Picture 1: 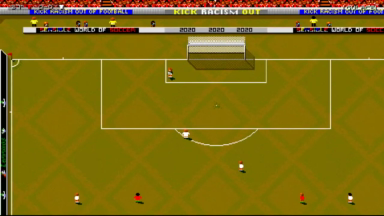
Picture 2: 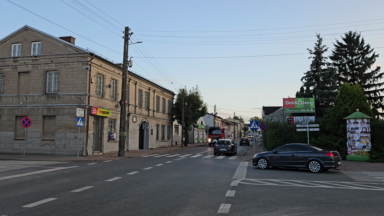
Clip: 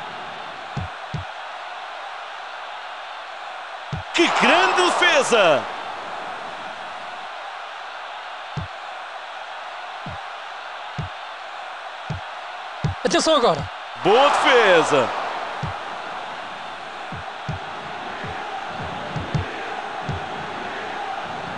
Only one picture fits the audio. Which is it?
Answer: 1